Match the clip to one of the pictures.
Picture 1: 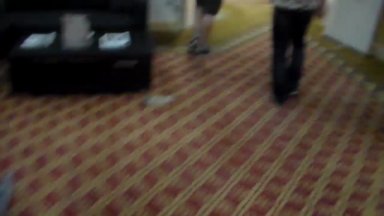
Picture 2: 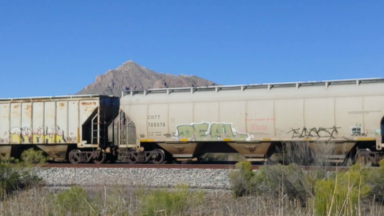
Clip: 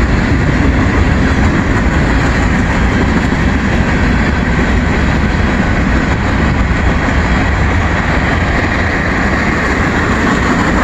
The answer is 2